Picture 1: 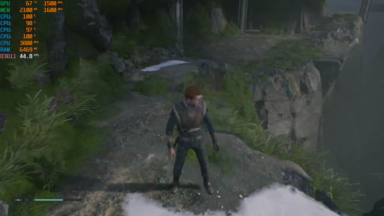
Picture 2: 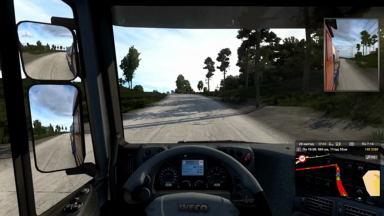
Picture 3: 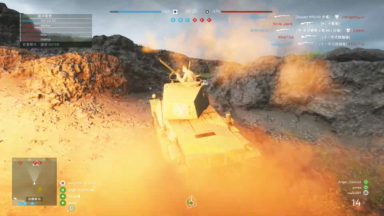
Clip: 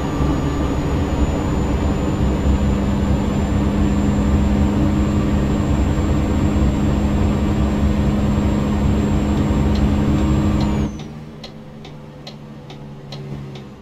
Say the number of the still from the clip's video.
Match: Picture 2